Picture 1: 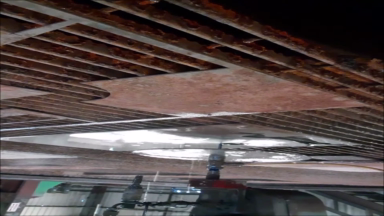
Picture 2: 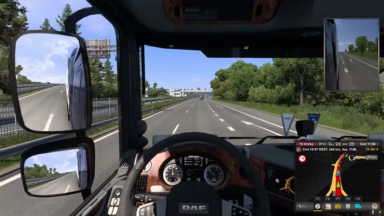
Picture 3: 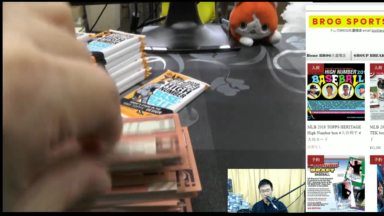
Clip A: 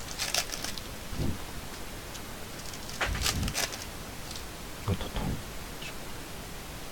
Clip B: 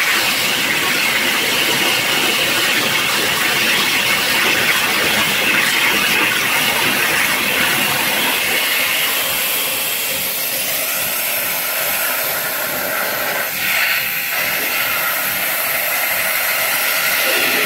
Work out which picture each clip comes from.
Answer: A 3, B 1